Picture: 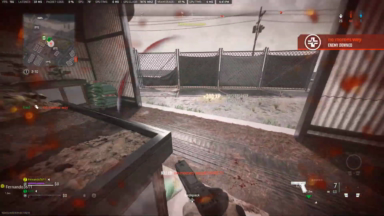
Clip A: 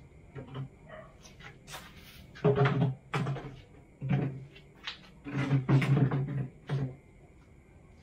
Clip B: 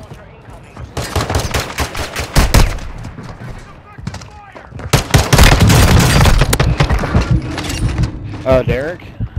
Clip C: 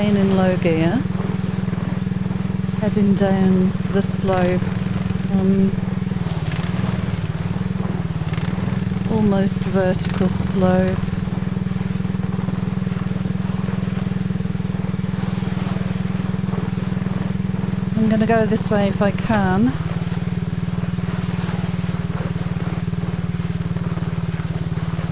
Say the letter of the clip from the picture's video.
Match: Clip B